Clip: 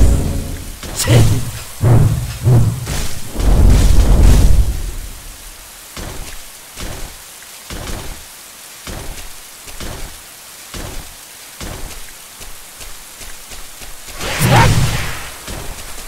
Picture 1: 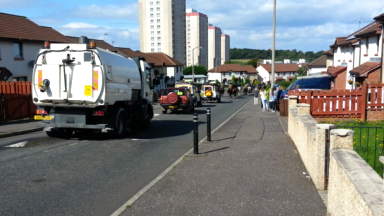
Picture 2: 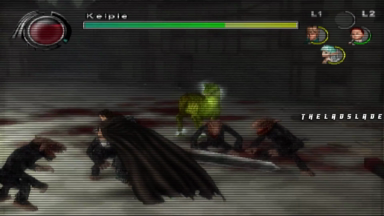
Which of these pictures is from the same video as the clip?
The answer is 2